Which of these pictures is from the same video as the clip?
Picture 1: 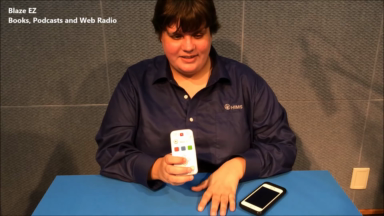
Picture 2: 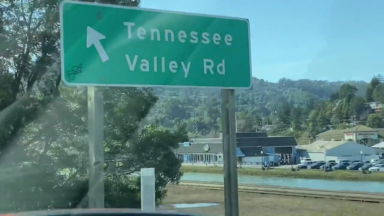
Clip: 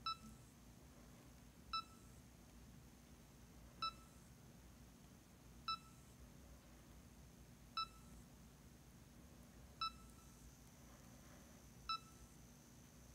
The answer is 1